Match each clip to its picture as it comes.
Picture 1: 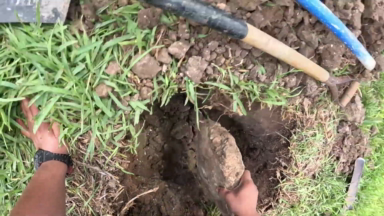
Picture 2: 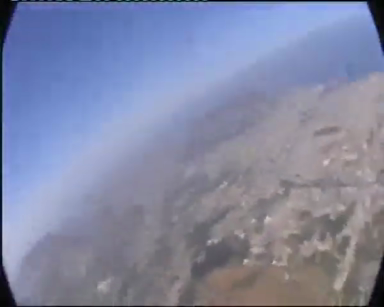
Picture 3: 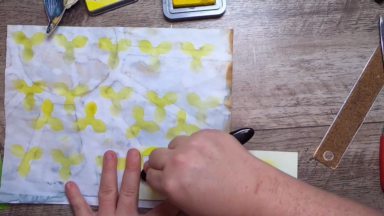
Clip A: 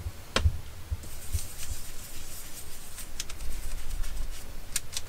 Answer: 3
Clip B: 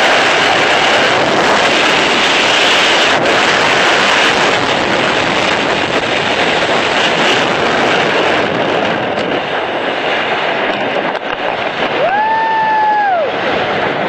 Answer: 2